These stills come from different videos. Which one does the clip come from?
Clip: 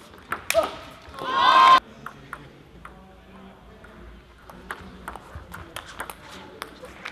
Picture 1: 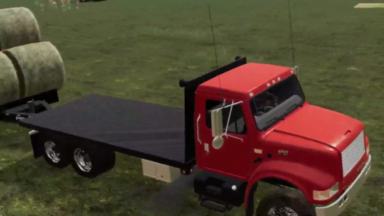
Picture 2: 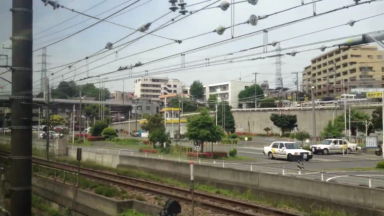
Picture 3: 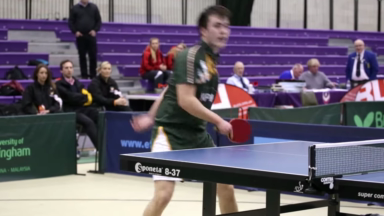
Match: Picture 3